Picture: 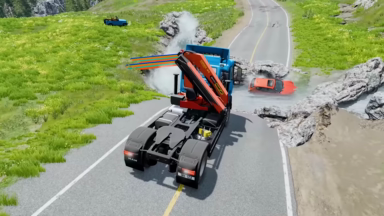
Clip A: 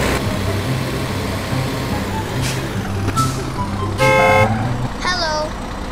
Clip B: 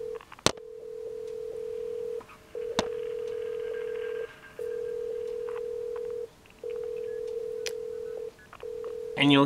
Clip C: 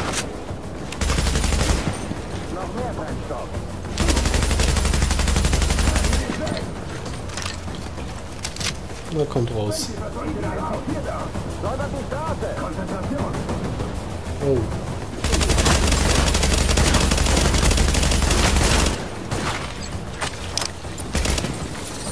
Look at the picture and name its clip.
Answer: A